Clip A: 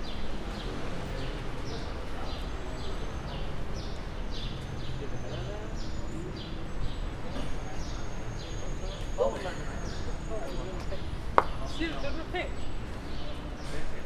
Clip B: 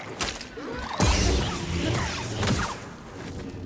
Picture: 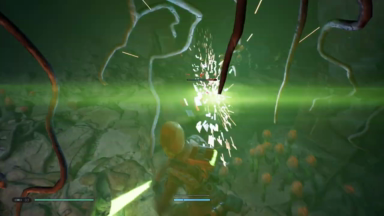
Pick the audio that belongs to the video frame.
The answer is B